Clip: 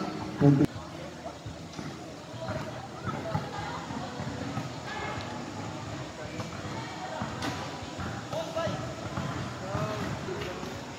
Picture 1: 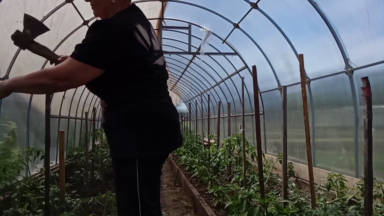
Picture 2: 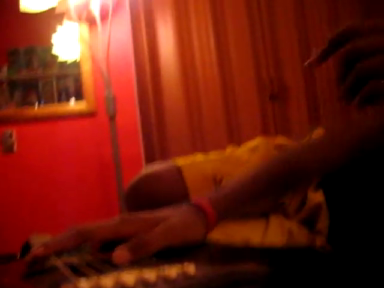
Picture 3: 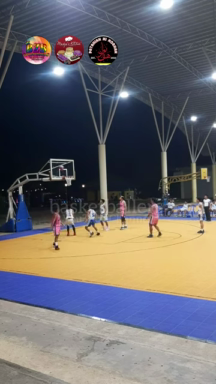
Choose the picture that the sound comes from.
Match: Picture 3